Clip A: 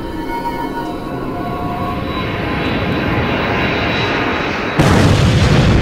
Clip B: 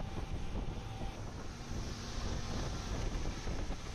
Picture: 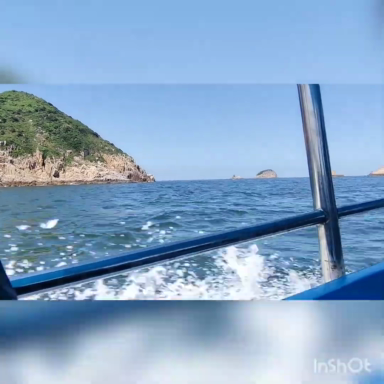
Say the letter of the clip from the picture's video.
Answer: B